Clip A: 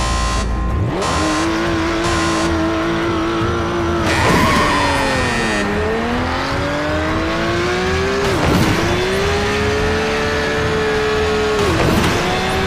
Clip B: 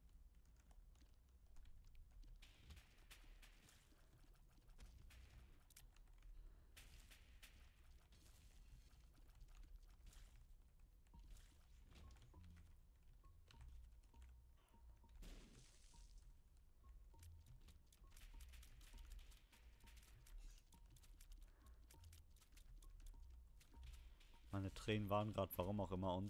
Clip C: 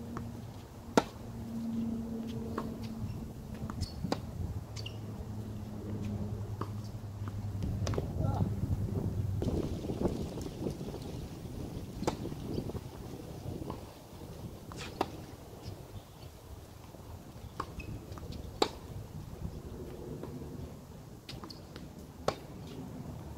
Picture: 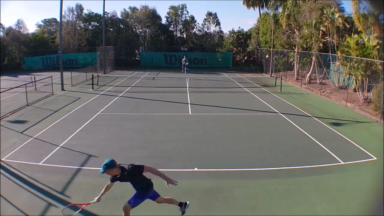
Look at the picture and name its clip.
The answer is C